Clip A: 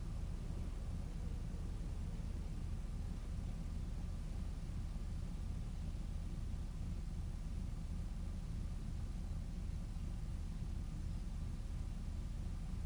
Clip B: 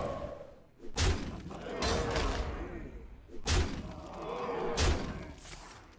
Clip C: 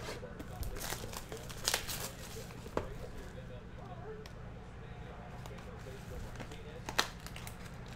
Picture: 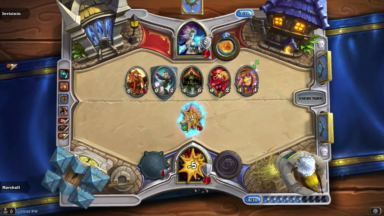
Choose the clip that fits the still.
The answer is B